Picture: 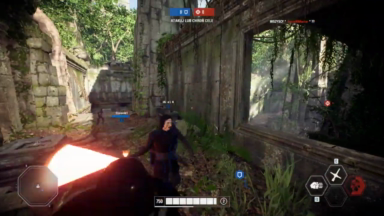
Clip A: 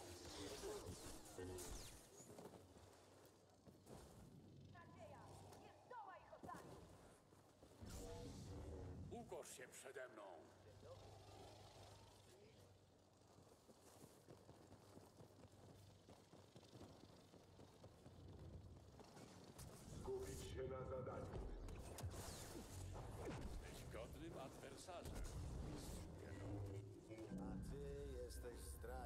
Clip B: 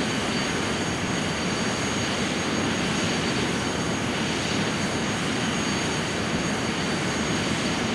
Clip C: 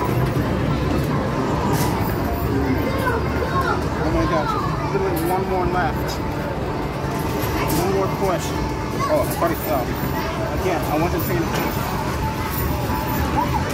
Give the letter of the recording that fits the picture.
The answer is A